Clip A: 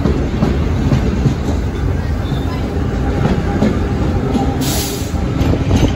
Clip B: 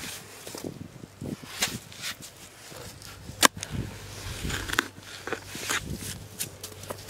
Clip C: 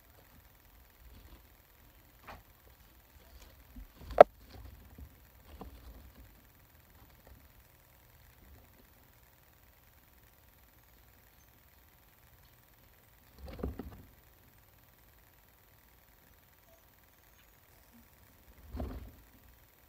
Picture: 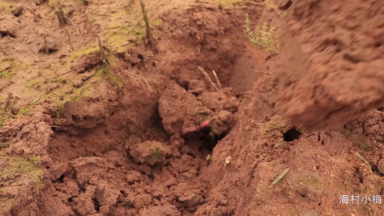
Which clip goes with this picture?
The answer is B